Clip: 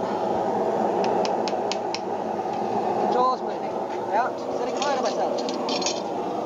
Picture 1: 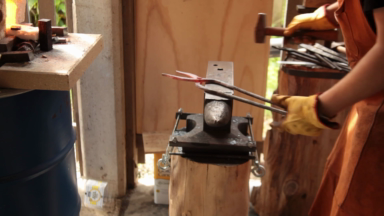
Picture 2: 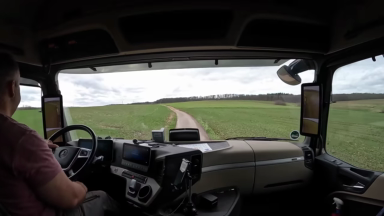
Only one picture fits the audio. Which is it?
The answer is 1